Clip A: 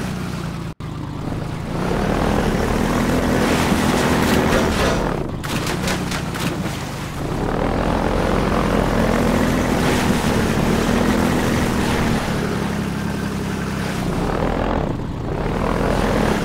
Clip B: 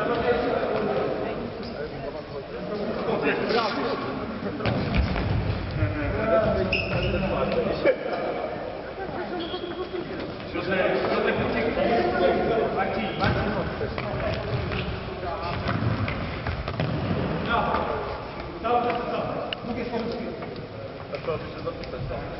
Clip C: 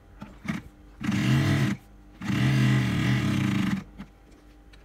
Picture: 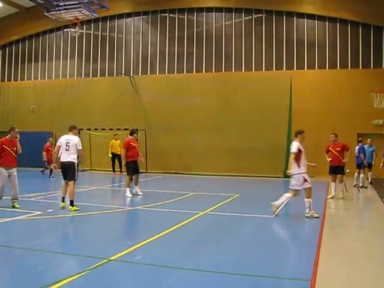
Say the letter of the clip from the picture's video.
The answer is B